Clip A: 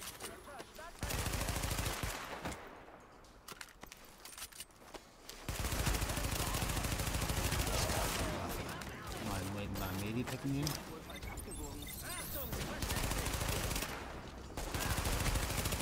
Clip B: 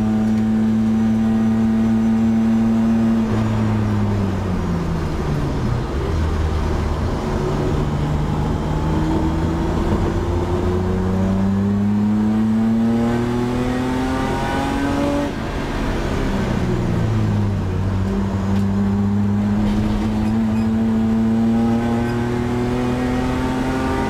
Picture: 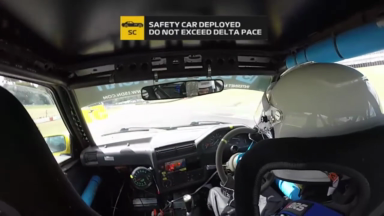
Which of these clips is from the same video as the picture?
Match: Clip B